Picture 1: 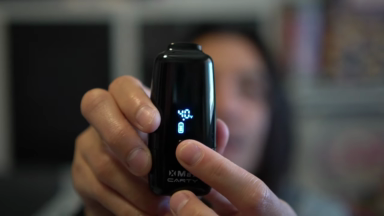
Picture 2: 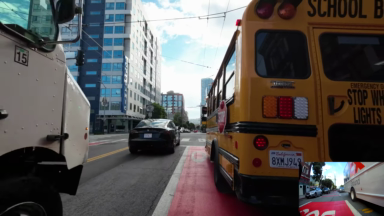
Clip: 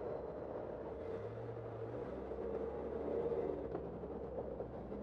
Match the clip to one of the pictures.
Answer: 2